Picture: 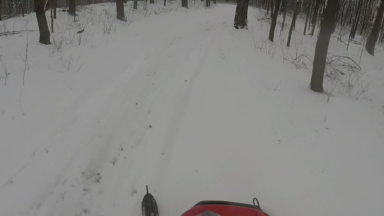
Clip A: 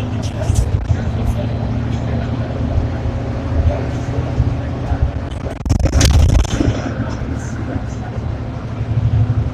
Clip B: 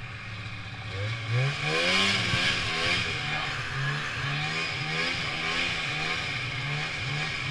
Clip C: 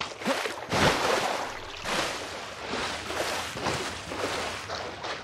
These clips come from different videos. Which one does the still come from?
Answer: B